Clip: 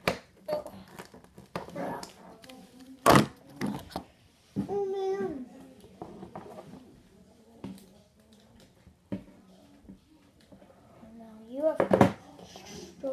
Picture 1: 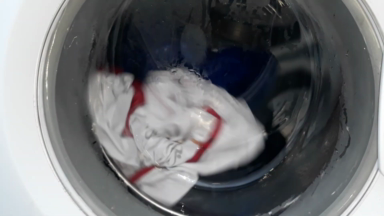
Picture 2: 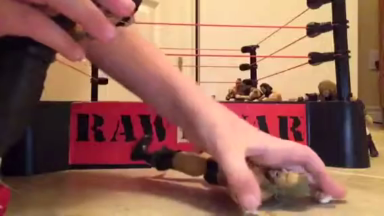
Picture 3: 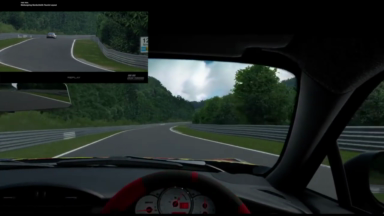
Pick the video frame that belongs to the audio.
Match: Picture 2